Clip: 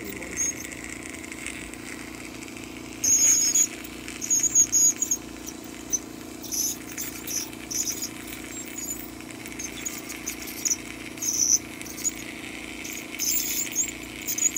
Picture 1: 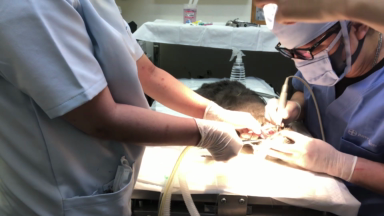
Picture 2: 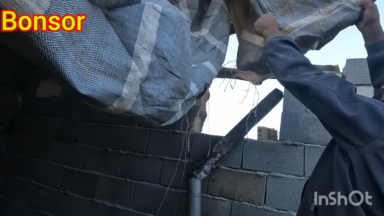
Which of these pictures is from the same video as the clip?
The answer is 1